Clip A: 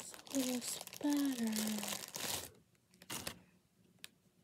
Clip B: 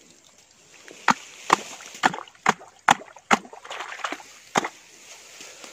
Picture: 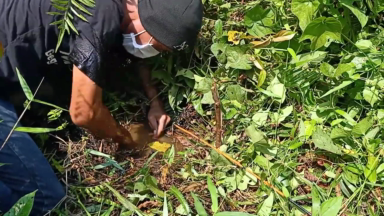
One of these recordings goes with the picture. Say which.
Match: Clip B